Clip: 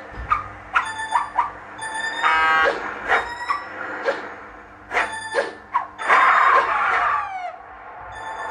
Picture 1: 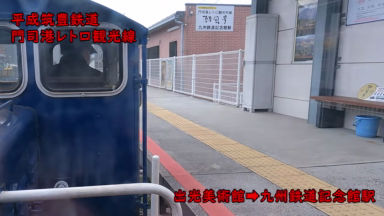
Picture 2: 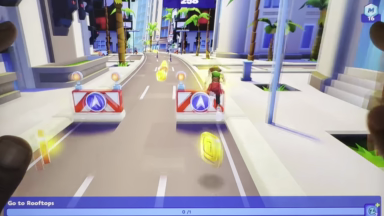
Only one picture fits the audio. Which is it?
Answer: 2